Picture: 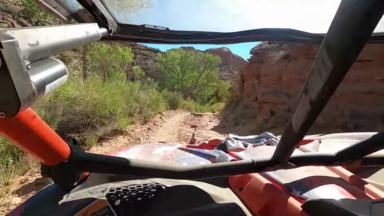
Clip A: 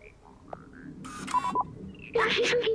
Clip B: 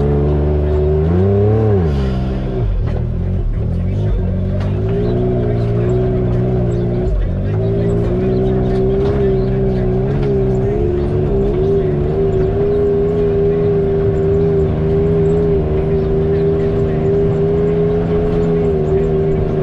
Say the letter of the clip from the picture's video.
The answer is B